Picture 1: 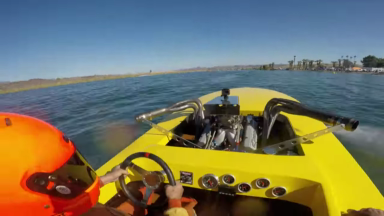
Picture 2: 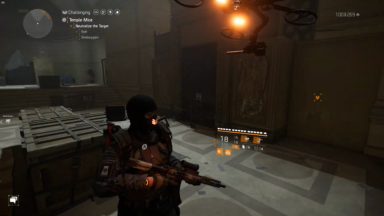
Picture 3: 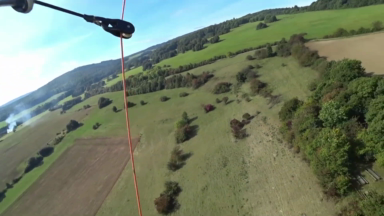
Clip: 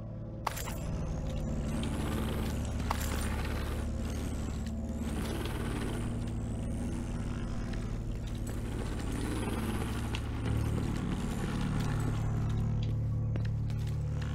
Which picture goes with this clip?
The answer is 2